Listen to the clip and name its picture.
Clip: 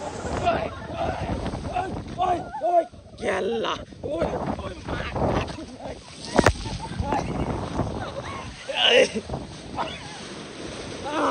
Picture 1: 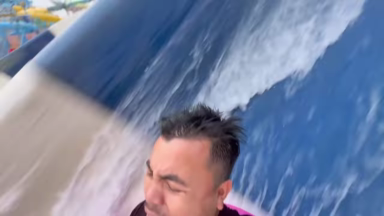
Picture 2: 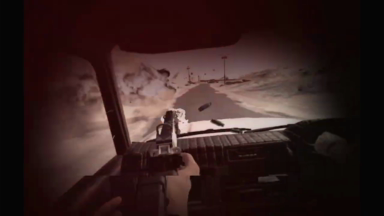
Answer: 1